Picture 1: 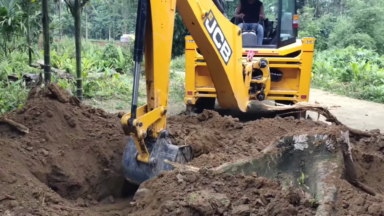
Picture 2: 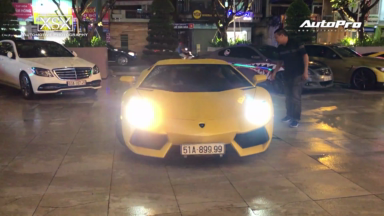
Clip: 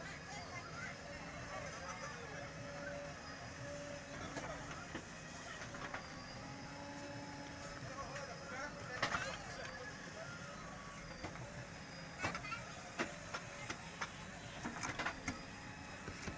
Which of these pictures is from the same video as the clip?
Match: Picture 1